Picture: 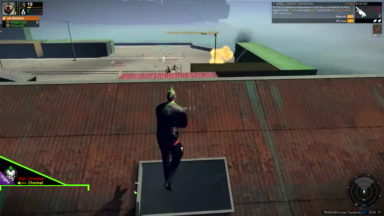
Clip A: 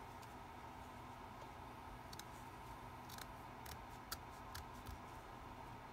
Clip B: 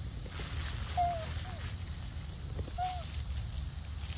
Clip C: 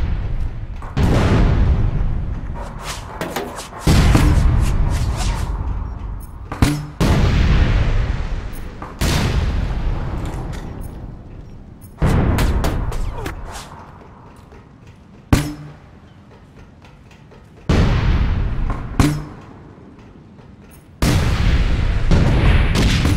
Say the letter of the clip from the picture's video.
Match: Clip C